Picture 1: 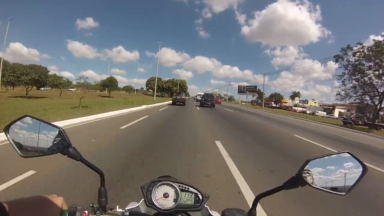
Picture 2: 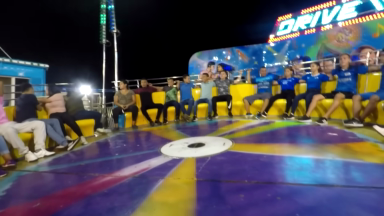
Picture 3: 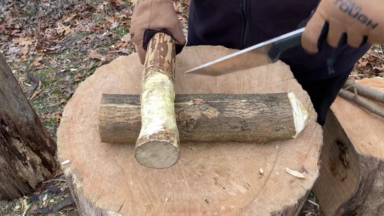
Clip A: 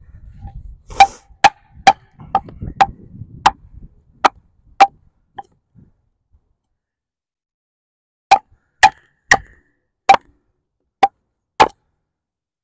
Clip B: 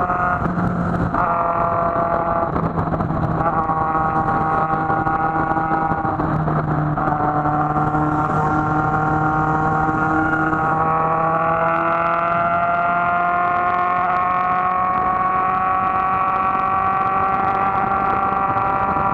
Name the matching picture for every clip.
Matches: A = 3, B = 1